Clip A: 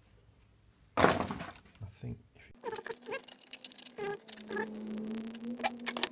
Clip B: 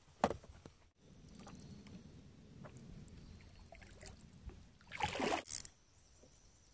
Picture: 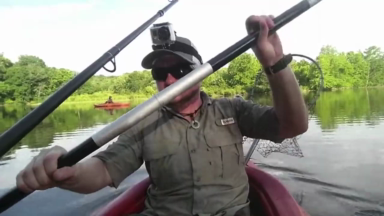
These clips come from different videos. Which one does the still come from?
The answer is B